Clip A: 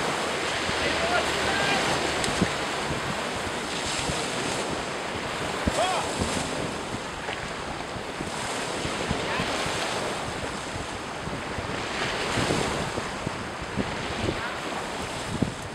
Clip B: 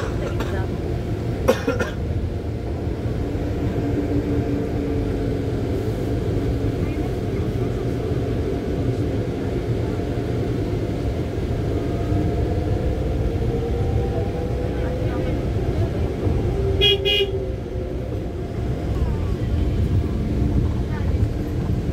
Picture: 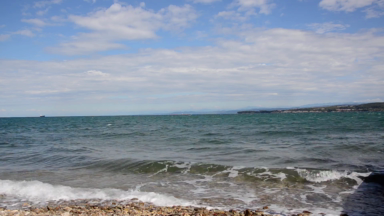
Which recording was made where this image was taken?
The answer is A